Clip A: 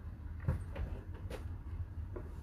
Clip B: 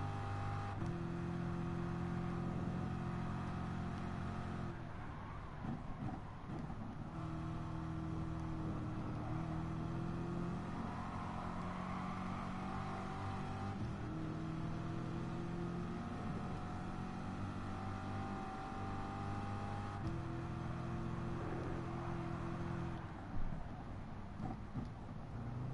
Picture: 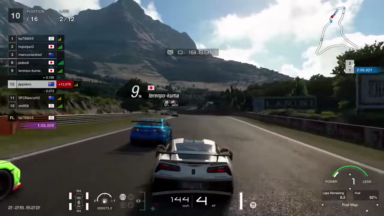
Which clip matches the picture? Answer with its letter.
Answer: B